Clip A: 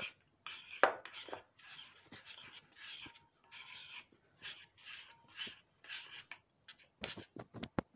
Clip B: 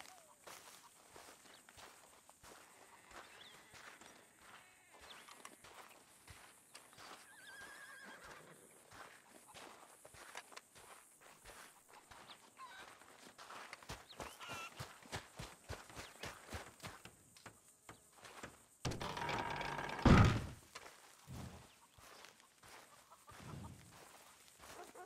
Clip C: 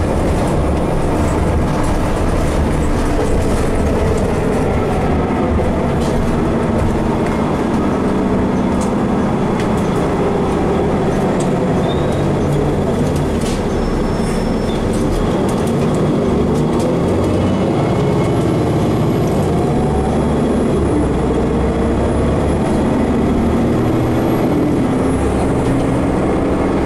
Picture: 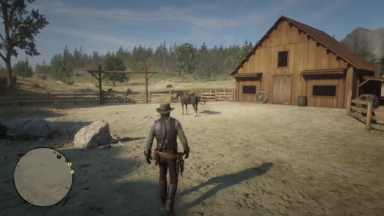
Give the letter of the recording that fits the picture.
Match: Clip B